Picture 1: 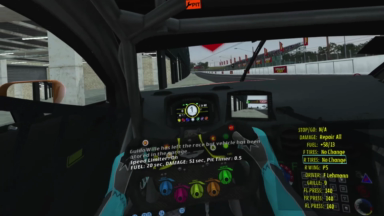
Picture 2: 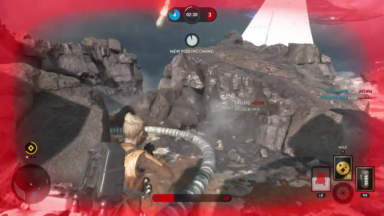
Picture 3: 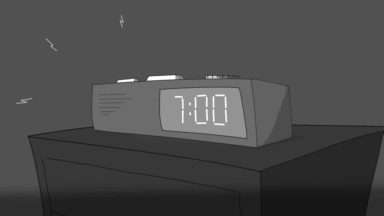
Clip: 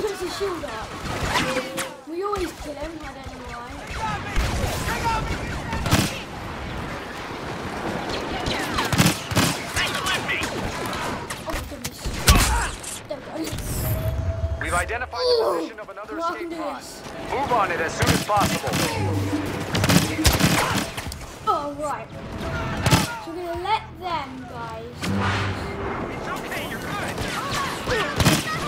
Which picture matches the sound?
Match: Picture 2